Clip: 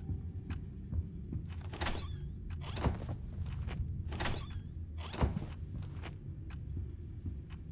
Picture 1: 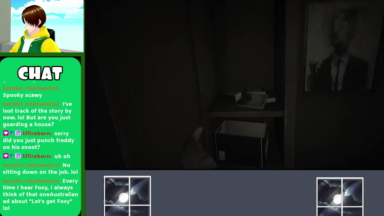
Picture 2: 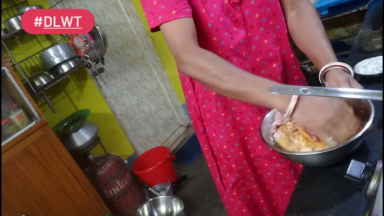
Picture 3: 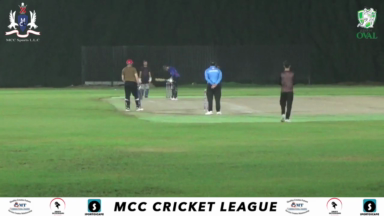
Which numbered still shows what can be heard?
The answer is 1